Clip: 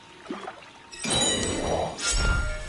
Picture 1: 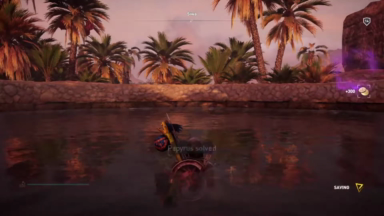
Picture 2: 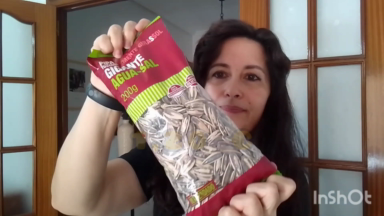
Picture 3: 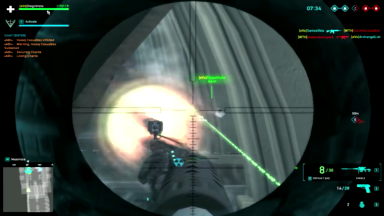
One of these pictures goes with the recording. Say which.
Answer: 1